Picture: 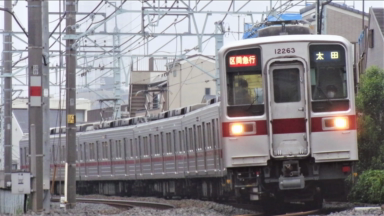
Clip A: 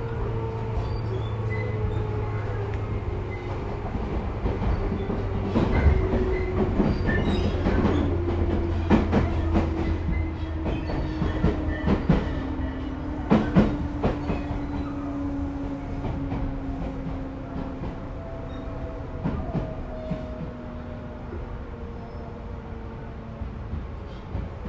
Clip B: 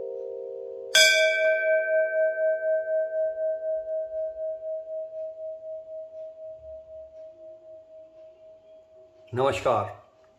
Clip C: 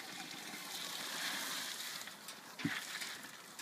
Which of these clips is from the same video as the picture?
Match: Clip A